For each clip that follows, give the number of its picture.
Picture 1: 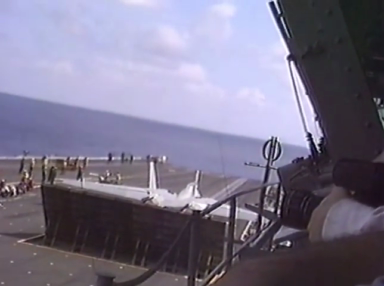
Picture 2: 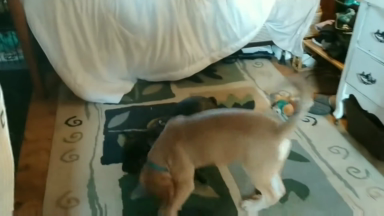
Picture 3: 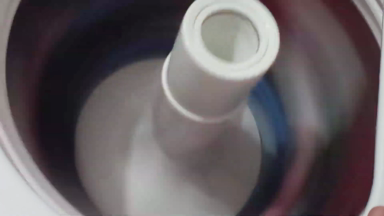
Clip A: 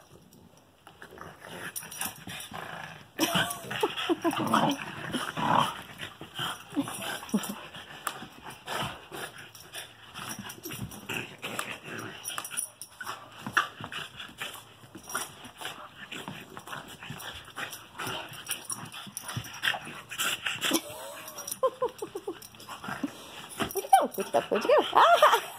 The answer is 2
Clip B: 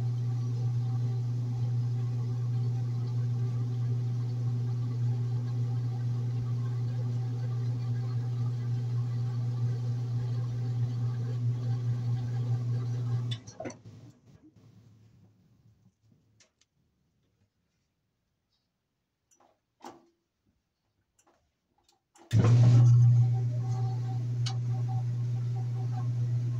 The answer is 3